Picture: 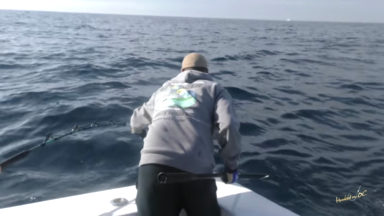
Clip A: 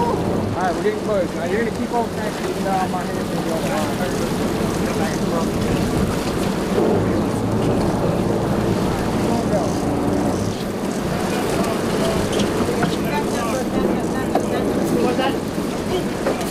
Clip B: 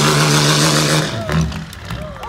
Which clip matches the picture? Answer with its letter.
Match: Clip A